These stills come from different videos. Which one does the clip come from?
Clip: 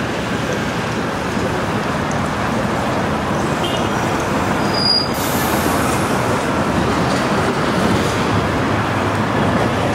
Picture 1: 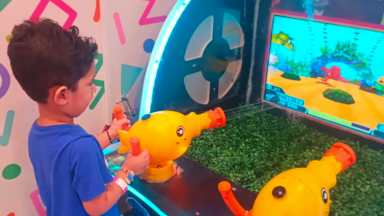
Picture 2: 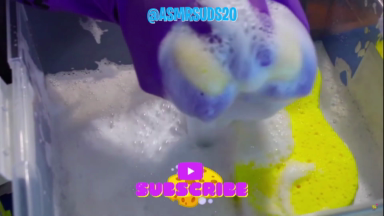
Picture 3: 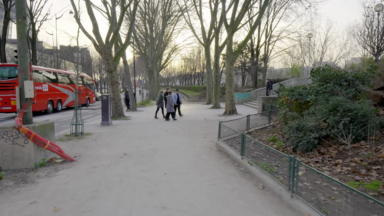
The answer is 3